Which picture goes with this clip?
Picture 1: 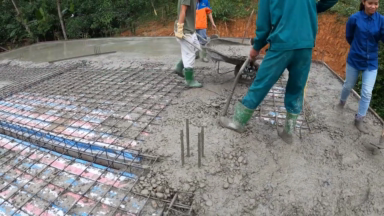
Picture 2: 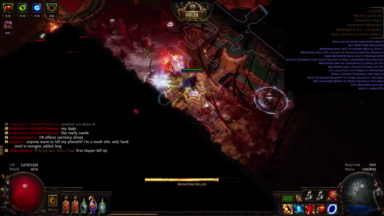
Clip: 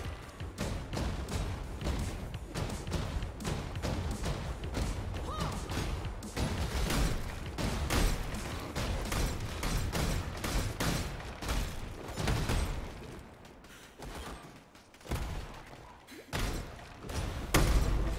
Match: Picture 2